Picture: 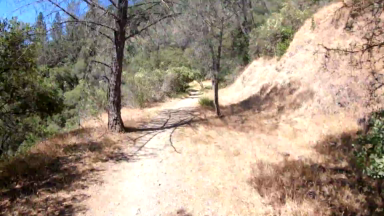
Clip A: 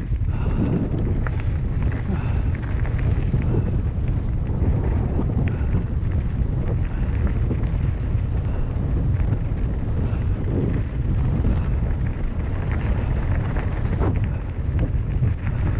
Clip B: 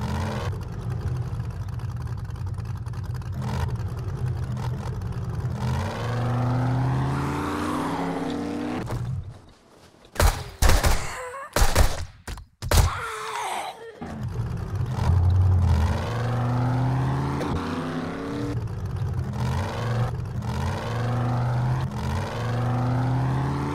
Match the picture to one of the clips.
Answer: A